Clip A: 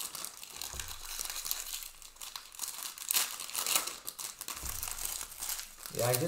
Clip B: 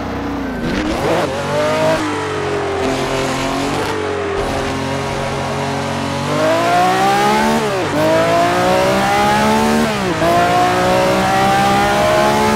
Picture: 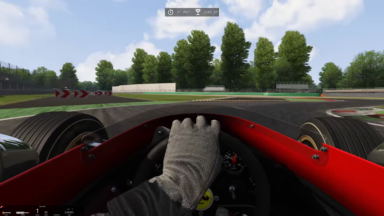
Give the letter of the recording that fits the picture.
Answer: B